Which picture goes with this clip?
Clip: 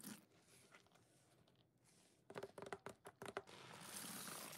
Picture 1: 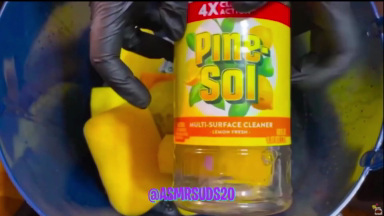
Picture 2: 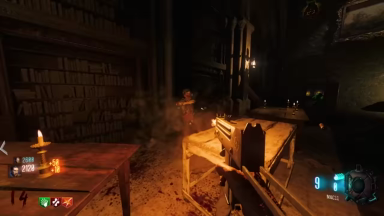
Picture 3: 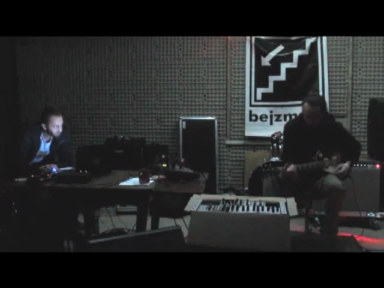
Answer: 1